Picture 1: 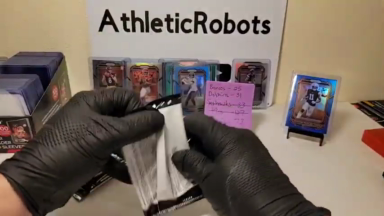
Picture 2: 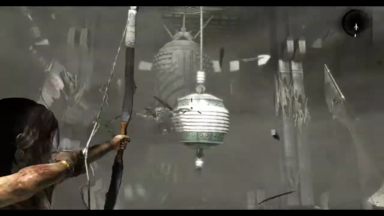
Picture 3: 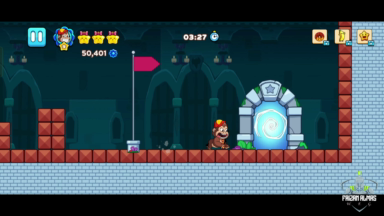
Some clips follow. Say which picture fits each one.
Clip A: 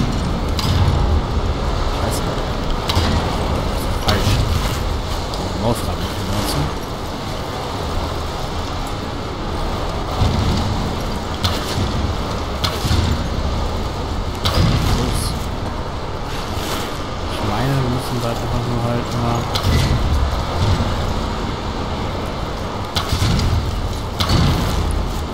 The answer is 2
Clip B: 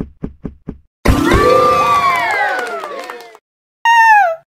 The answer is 3